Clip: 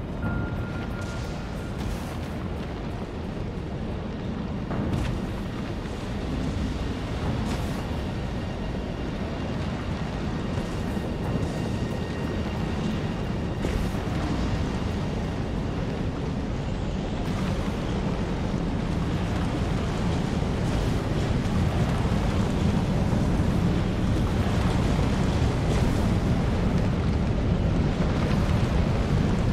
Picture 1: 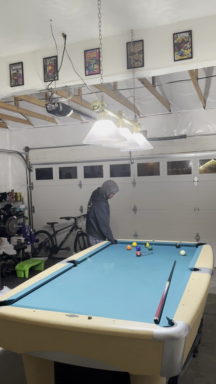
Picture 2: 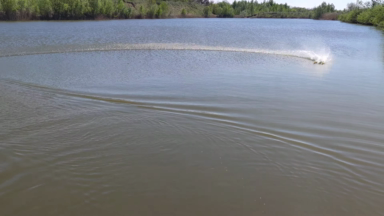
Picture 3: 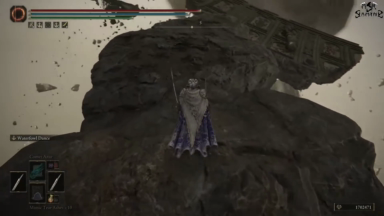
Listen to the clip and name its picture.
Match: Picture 3